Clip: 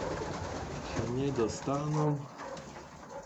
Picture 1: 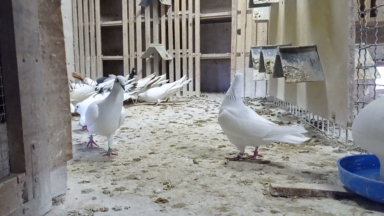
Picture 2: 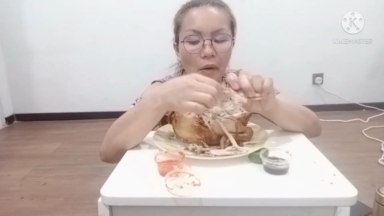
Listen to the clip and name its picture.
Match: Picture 1